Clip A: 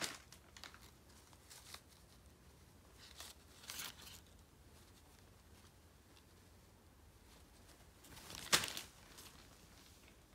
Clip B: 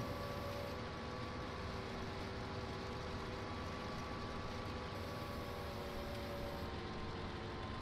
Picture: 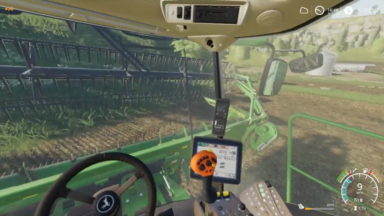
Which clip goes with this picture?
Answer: B